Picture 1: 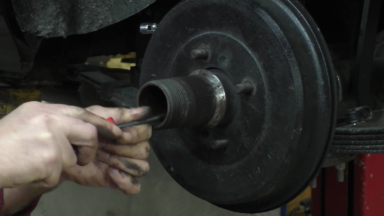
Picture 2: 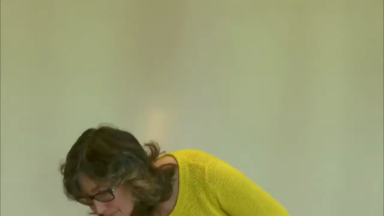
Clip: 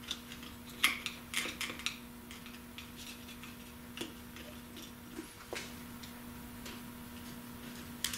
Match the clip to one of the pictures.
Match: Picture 1